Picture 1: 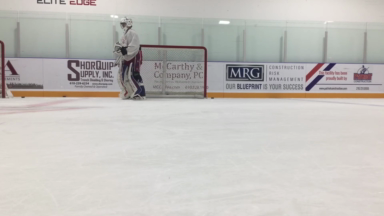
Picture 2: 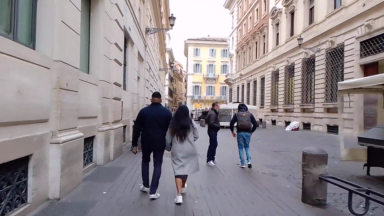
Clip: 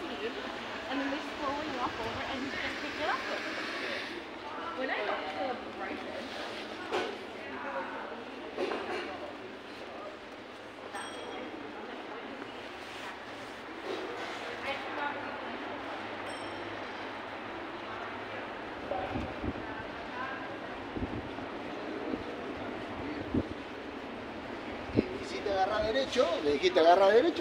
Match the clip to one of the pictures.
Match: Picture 2